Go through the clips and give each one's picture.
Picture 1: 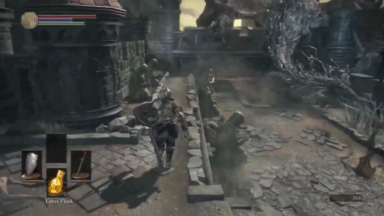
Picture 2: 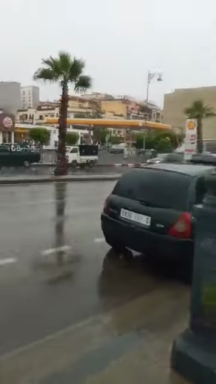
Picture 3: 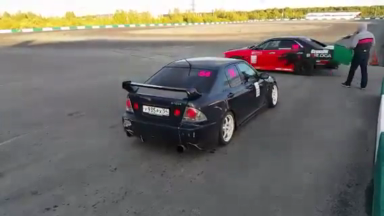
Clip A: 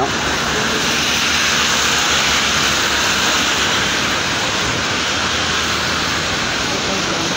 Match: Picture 2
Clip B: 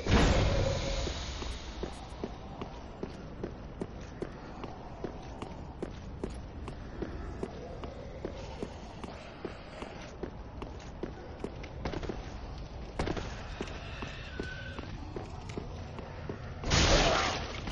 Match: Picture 1